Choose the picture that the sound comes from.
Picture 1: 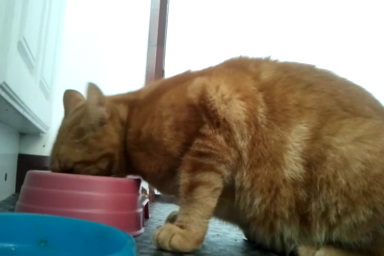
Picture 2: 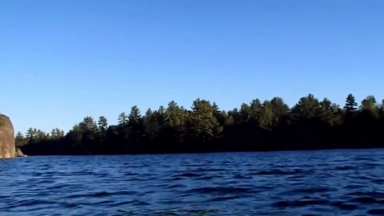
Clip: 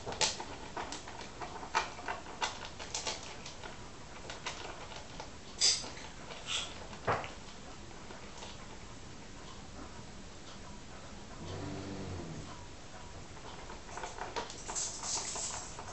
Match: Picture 1